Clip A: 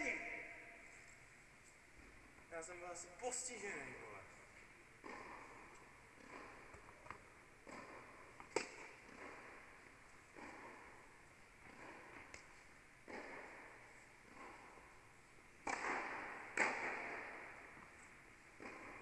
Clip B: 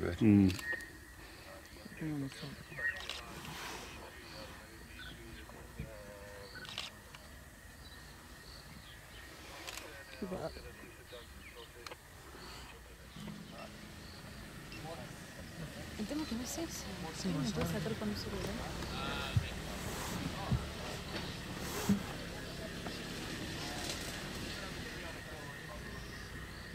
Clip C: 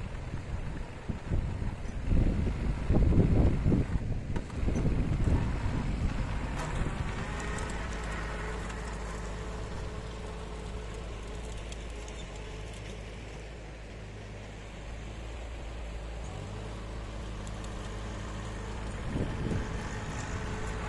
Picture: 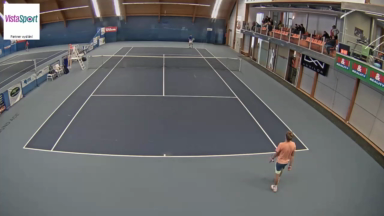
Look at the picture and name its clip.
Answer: A